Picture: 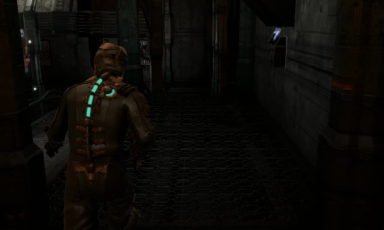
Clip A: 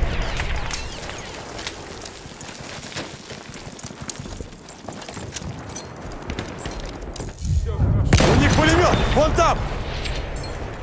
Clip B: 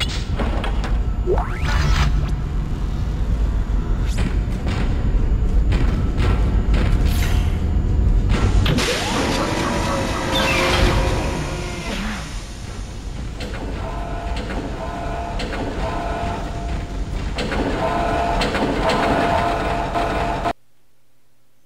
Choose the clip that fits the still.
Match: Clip B